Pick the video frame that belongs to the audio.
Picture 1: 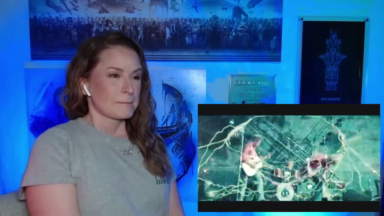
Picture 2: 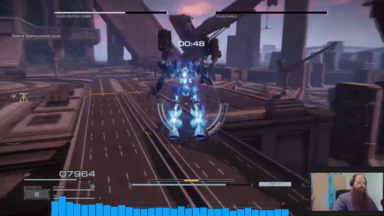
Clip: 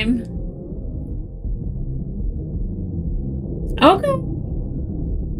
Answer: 1